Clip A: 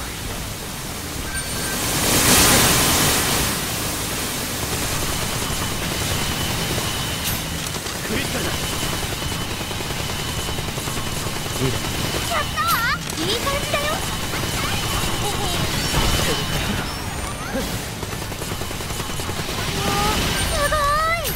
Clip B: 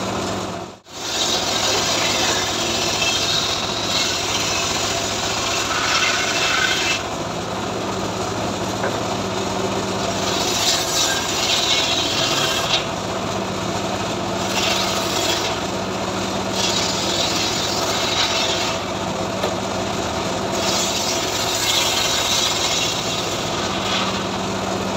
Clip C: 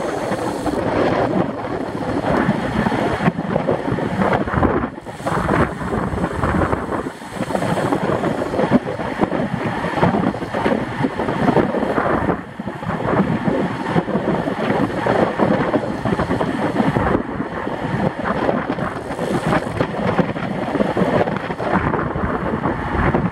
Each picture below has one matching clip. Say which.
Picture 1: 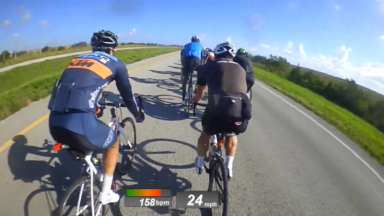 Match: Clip C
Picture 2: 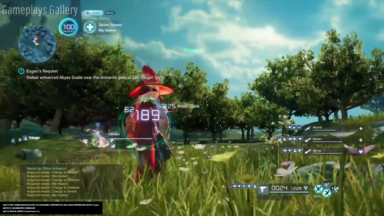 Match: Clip A